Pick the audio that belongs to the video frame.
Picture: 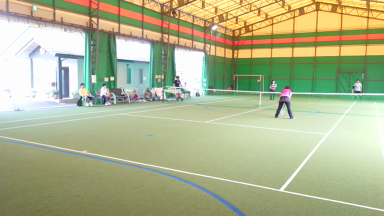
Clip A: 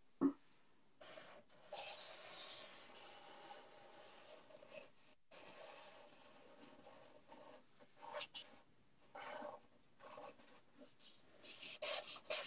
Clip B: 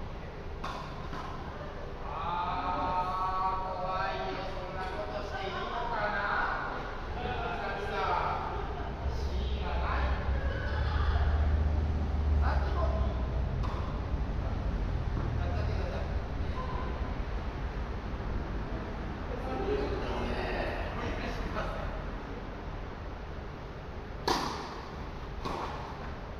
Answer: B